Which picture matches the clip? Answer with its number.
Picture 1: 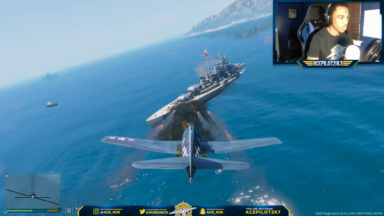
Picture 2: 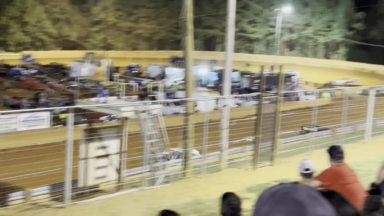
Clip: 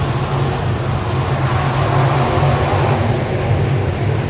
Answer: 2